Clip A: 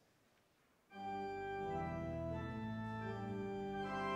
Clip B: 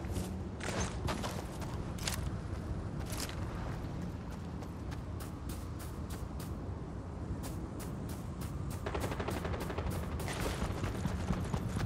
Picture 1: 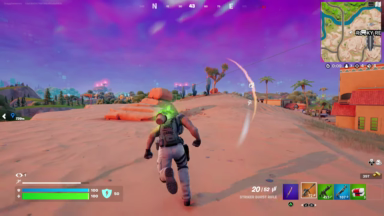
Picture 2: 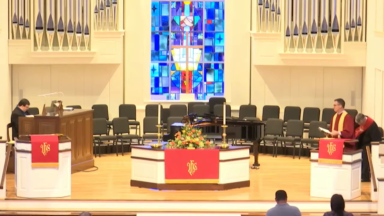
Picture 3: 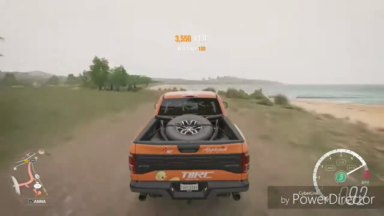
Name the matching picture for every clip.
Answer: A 2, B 1